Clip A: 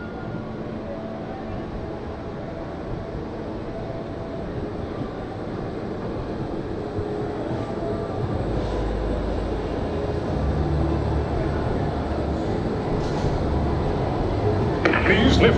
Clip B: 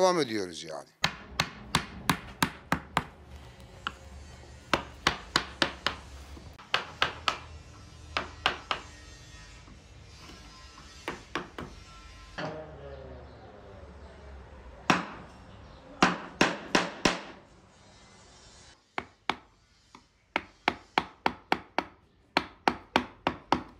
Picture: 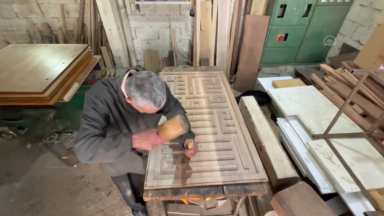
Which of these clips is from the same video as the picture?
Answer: B